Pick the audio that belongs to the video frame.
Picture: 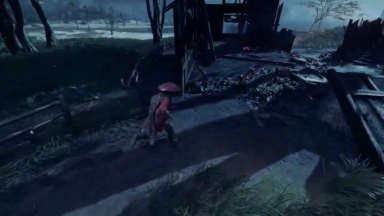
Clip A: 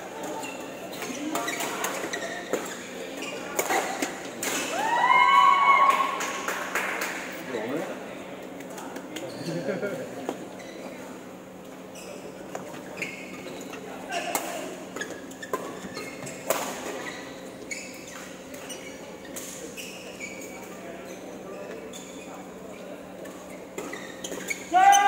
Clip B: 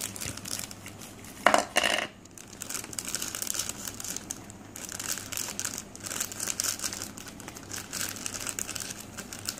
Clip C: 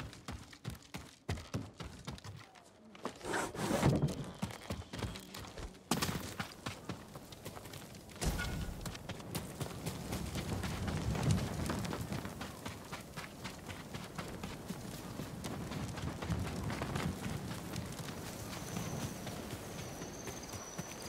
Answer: C